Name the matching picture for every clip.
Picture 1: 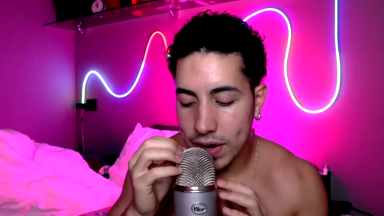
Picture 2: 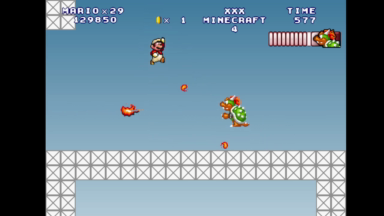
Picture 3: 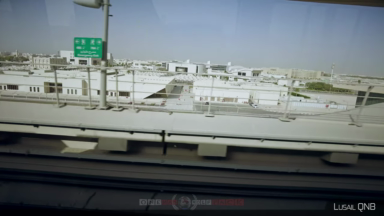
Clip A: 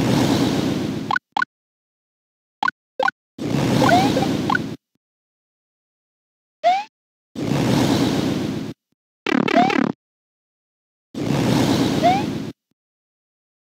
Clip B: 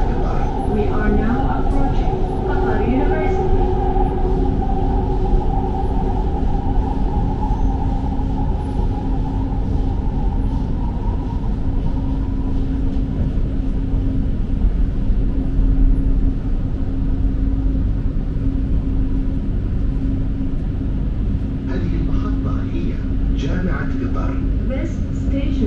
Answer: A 2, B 3